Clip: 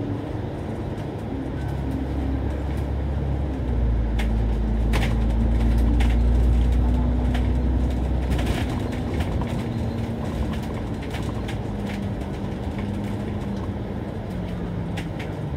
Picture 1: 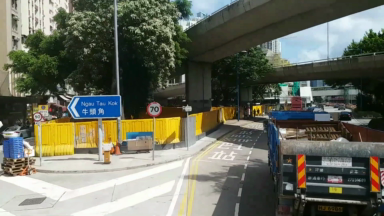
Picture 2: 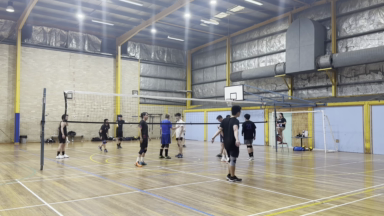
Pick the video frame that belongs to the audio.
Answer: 1